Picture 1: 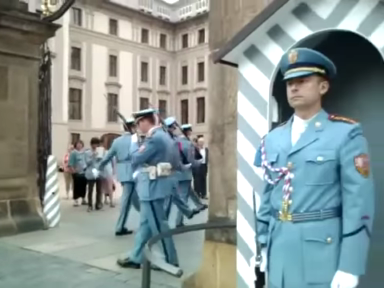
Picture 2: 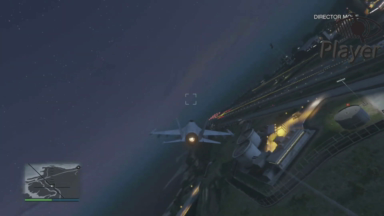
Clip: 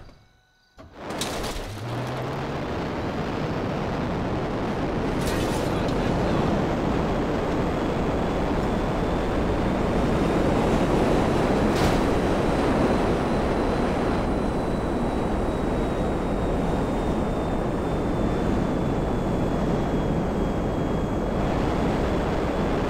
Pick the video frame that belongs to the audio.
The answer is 2